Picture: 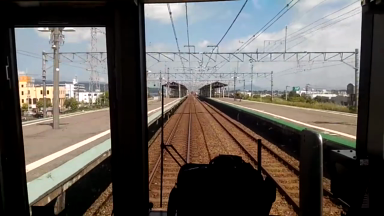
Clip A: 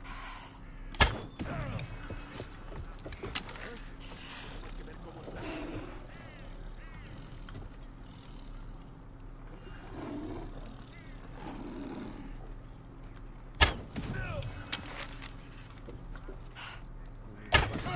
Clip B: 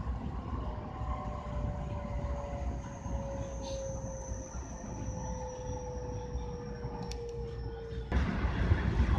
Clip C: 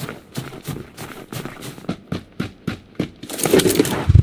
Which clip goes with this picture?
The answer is B